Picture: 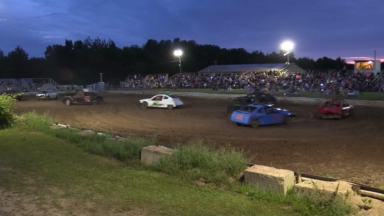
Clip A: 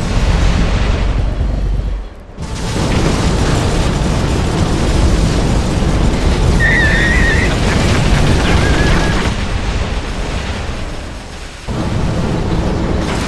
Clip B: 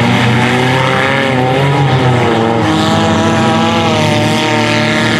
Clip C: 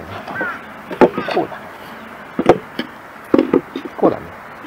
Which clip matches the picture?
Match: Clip B